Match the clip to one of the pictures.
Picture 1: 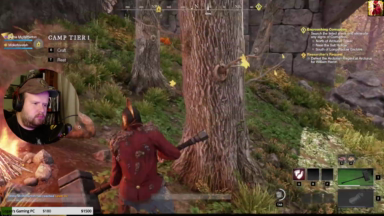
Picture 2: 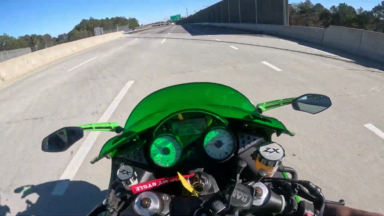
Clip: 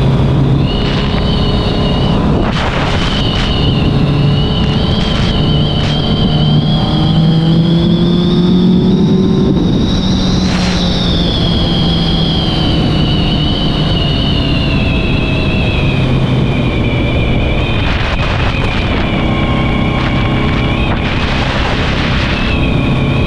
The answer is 2